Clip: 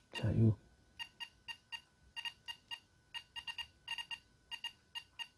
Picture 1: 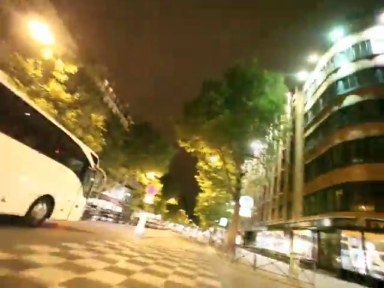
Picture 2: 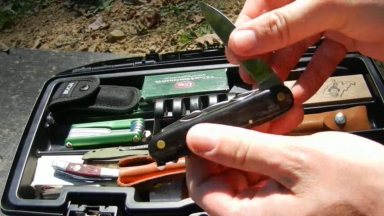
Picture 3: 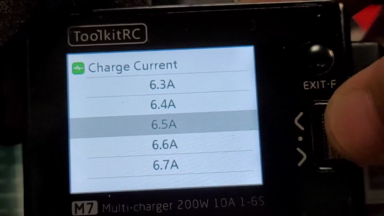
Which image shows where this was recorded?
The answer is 3